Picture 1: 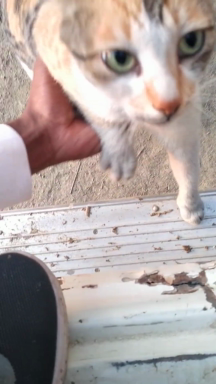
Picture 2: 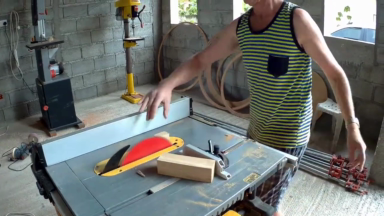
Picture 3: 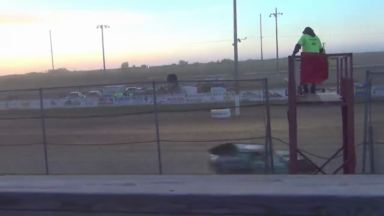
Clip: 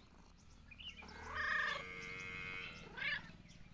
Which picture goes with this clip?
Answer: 1